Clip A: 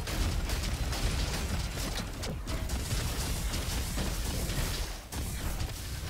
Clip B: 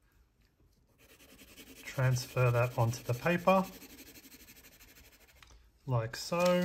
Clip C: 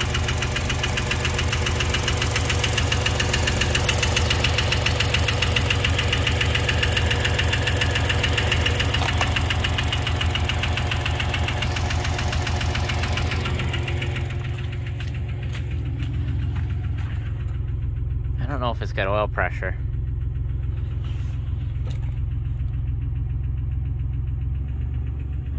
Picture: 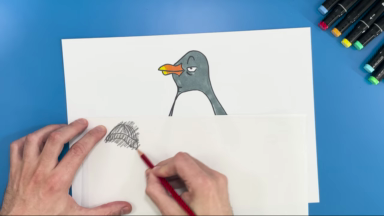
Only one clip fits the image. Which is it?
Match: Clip B